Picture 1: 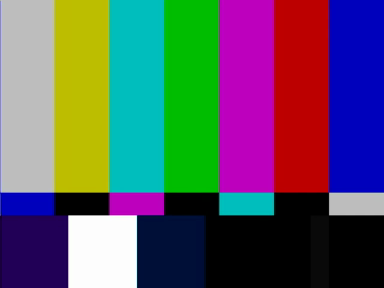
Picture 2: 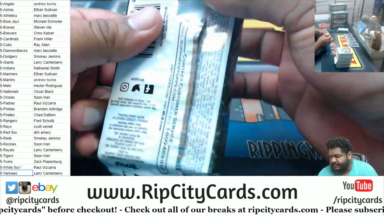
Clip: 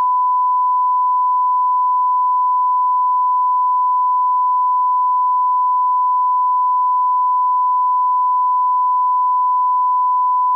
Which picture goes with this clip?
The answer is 1